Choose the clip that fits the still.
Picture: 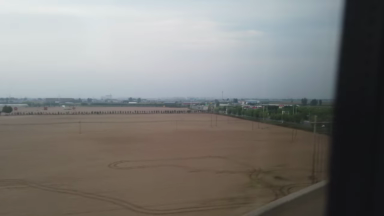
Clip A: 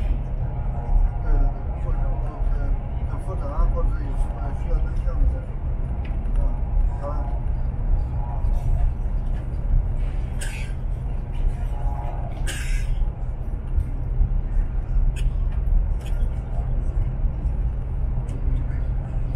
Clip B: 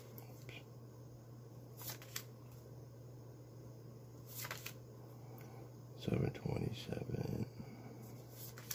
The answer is A